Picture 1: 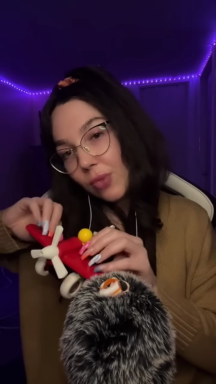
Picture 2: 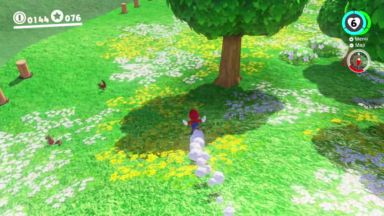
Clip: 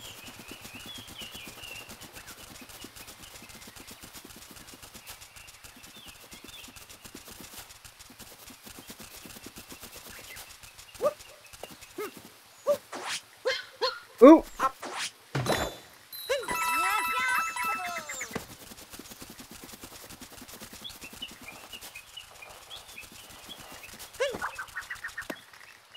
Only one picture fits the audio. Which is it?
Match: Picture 2